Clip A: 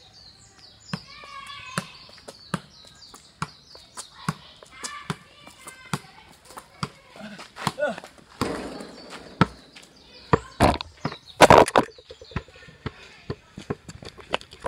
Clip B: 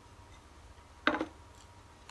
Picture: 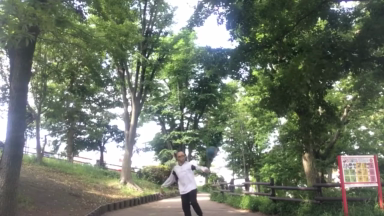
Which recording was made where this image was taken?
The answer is A